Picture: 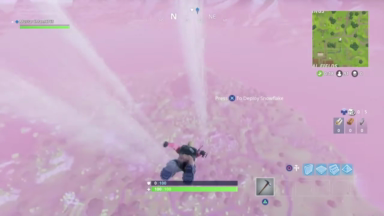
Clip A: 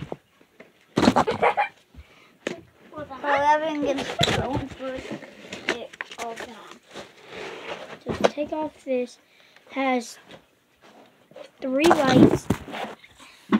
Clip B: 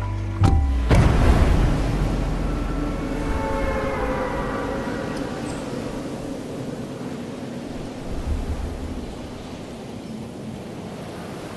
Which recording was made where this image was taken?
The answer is B